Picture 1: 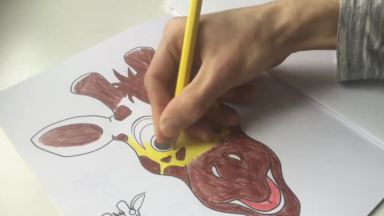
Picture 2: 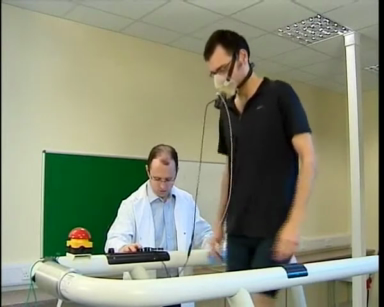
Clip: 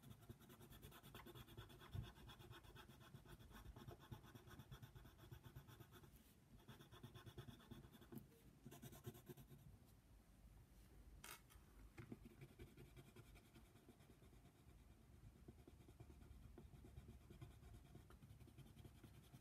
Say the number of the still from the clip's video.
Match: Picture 1